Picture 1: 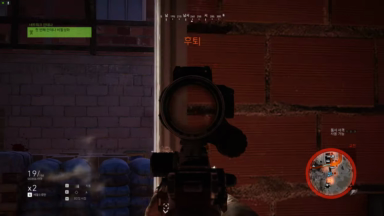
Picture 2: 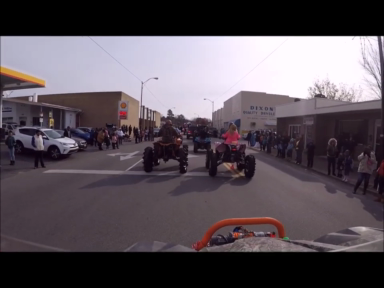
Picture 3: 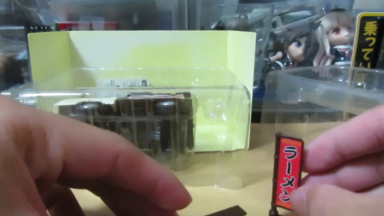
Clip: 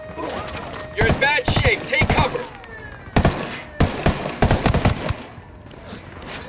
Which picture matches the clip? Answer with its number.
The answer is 1